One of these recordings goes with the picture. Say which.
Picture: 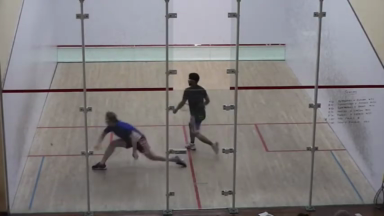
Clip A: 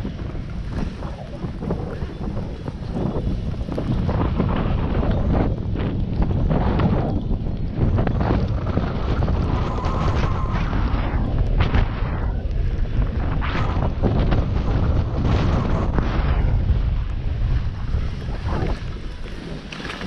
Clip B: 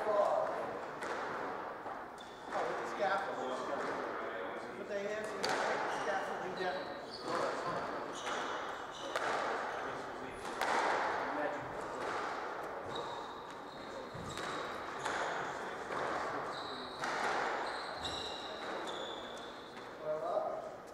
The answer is B